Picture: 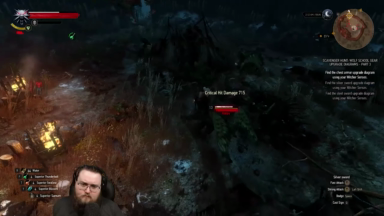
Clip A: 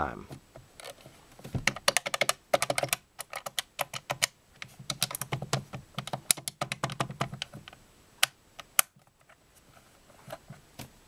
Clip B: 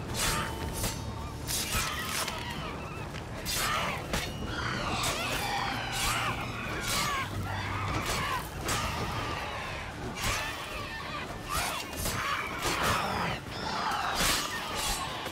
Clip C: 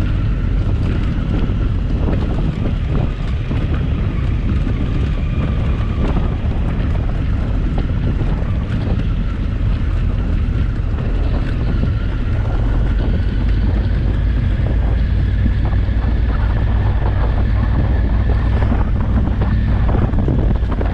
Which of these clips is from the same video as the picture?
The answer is B